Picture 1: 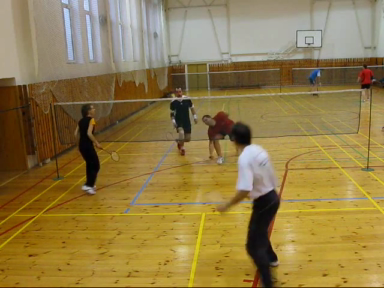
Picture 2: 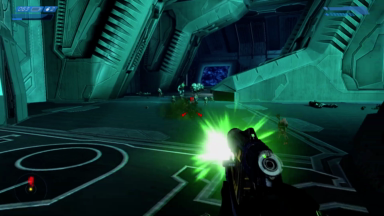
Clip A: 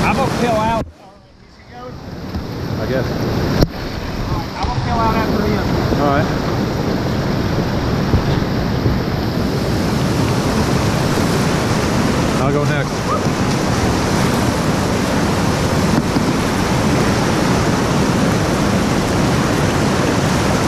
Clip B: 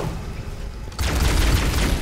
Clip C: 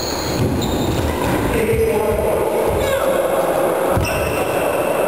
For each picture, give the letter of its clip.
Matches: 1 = C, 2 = B